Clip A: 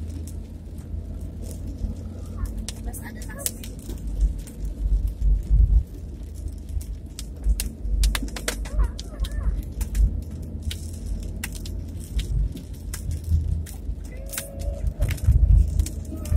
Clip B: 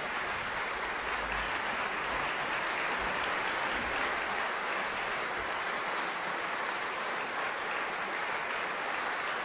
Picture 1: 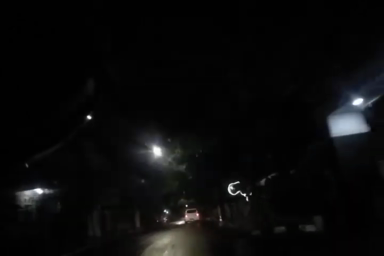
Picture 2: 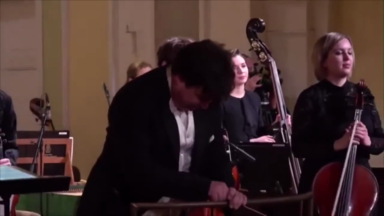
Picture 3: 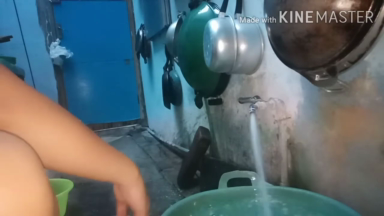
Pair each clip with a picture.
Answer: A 1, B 2